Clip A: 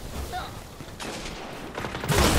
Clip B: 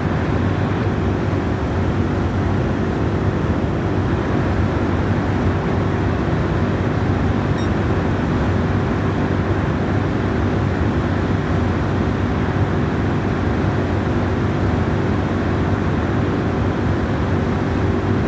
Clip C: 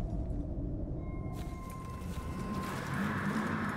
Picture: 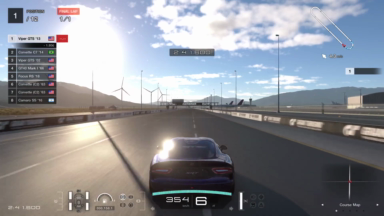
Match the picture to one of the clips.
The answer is B